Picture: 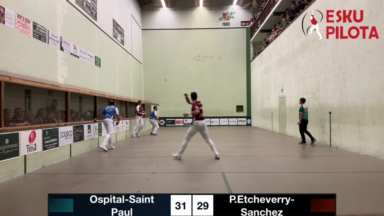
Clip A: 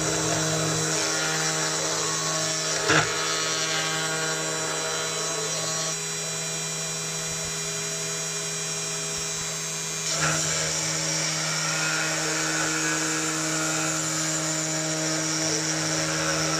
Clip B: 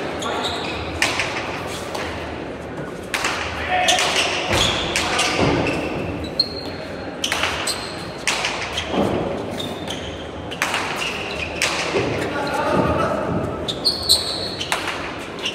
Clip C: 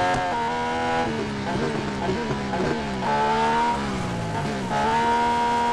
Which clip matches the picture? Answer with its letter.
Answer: B